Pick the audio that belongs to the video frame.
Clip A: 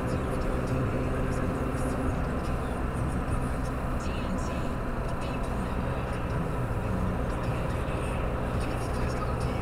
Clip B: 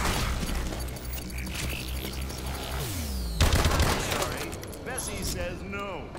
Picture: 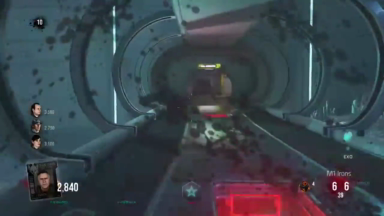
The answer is B